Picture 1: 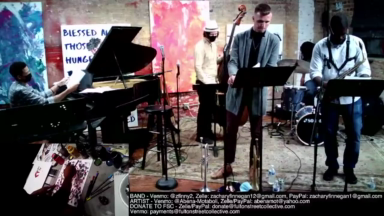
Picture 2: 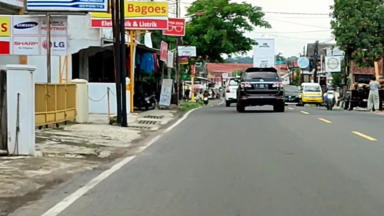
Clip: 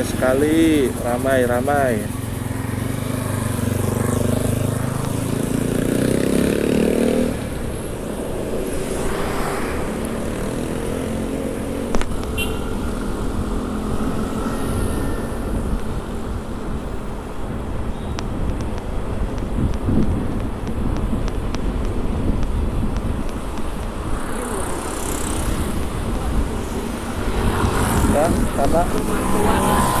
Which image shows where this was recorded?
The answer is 2